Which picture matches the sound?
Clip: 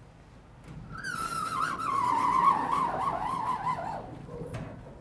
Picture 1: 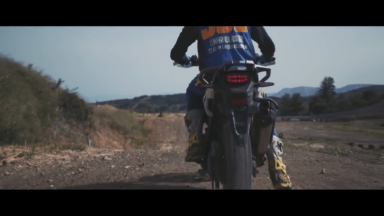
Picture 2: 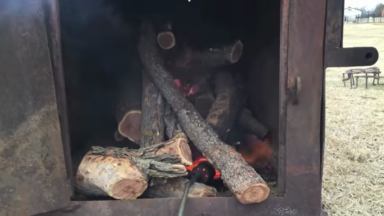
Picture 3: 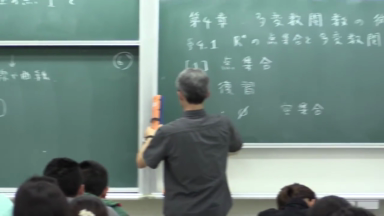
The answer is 3